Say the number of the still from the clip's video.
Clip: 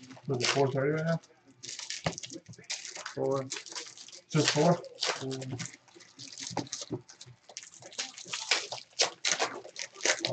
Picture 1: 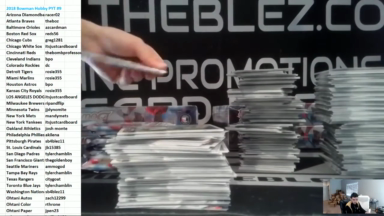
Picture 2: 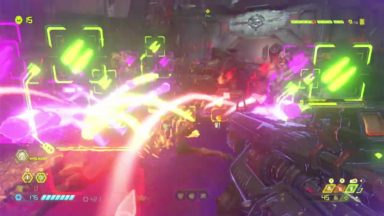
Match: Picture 1